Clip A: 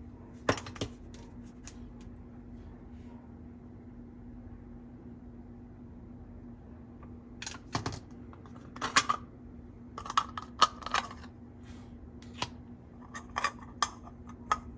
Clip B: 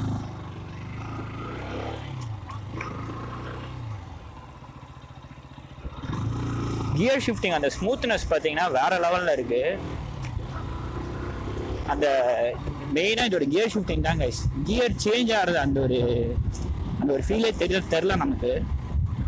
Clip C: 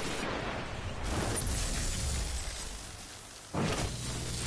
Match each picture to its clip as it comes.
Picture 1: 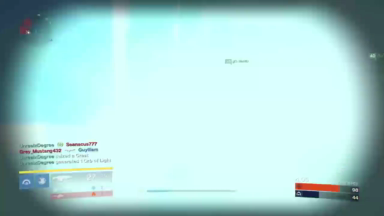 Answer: C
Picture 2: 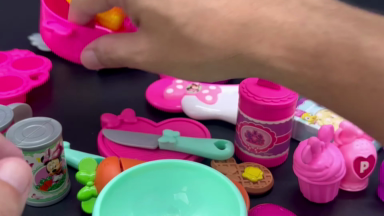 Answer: A